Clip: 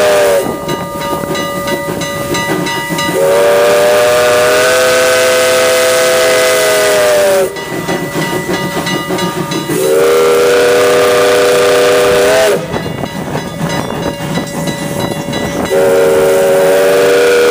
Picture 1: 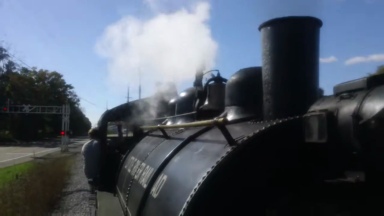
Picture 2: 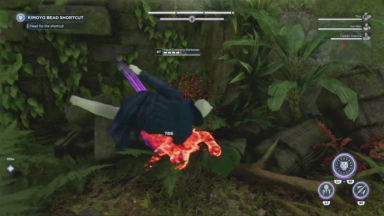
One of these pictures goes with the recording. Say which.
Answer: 1